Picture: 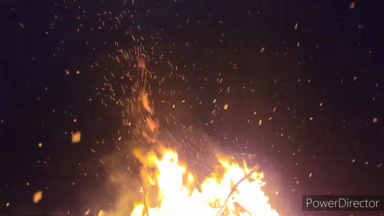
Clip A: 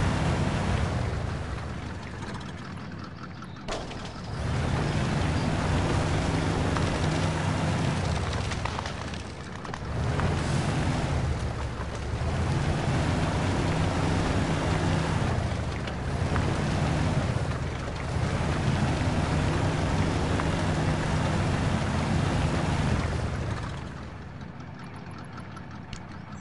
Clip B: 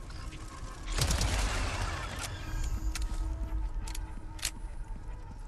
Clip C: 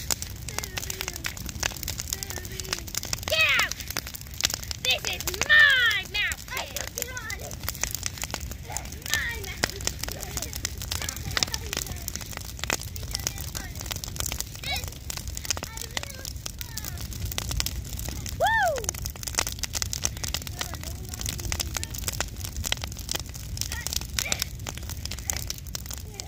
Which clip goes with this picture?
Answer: C